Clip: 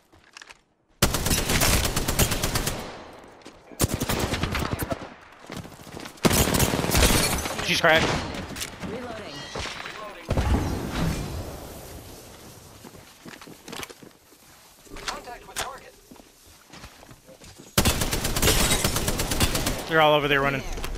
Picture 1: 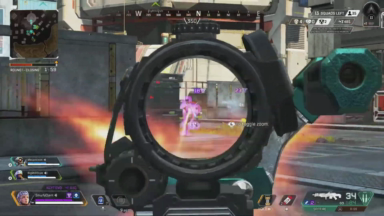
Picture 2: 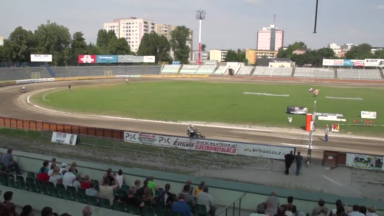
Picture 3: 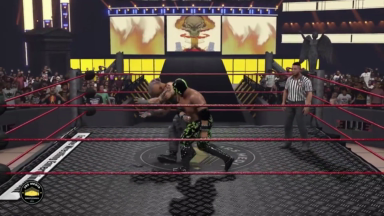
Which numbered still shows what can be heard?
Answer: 1